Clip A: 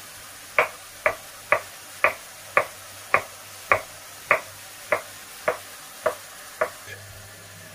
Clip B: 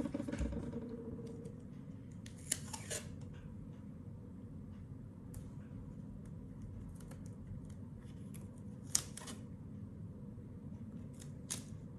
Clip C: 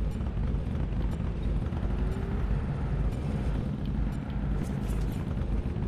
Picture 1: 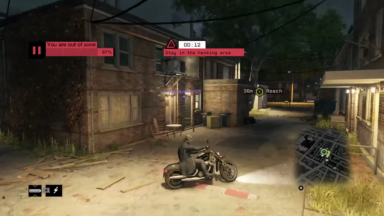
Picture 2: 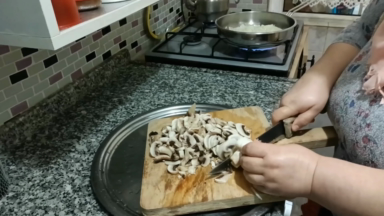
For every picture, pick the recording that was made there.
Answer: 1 C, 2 A